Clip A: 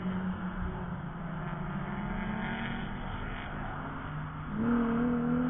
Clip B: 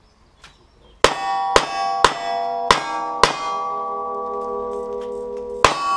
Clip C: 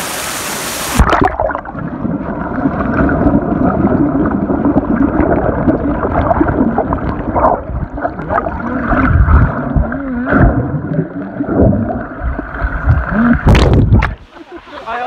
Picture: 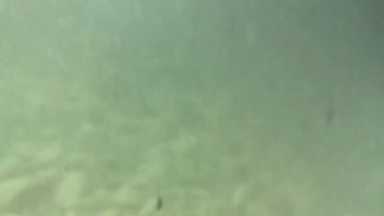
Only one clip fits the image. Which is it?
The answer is C